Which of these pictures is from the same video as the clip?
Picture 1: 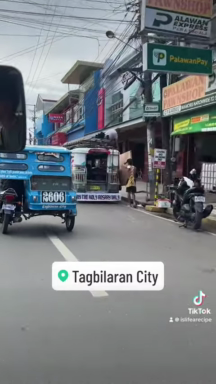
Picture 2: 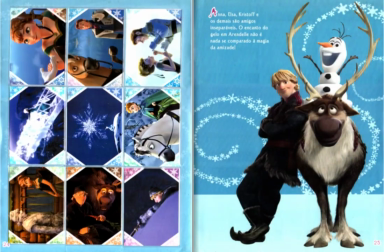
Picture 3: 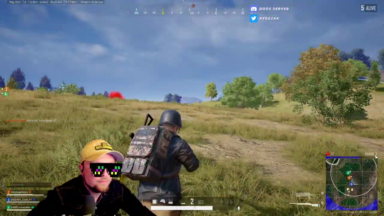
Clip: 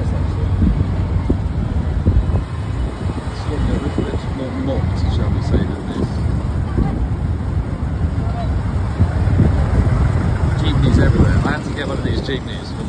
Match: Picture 1